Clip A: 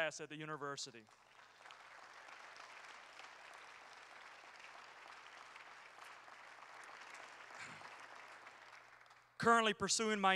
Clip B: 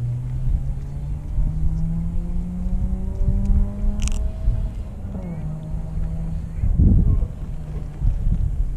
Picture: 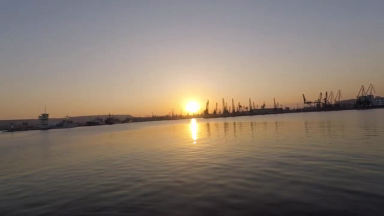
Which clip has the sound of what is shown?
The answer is B